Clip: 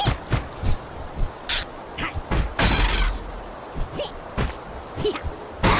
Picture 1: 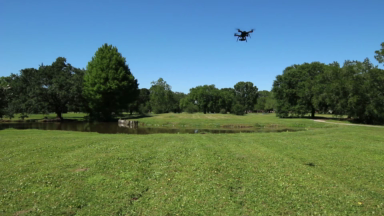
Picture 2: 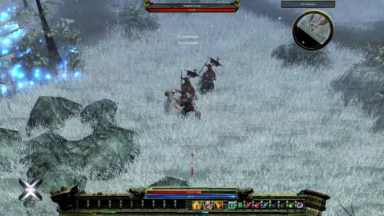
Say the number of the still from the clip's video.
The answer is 2